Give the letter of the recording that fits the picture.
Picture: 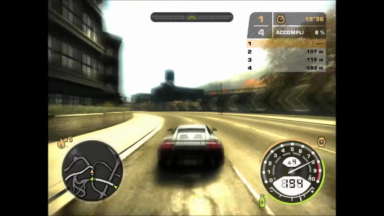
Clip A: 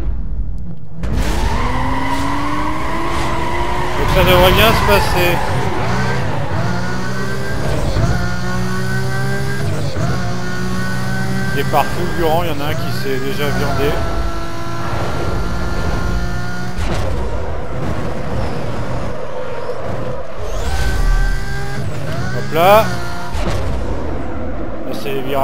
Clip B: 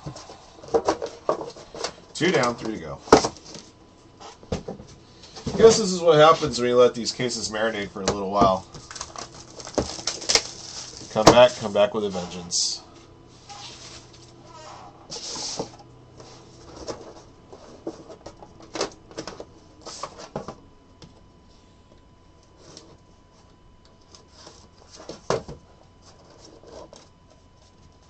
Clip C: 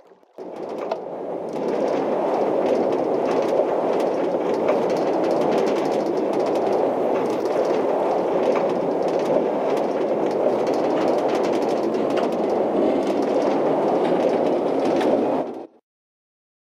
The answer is A